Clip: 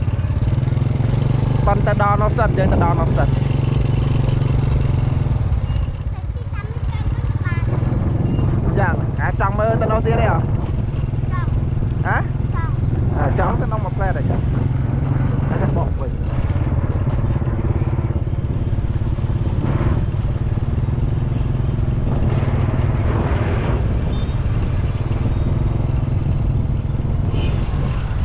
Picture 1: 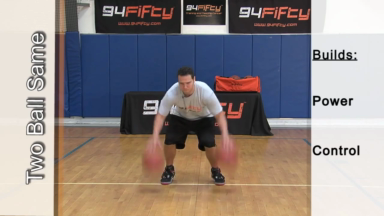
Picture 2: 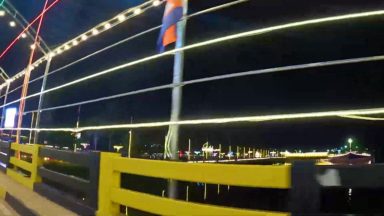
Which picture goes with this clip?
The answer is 2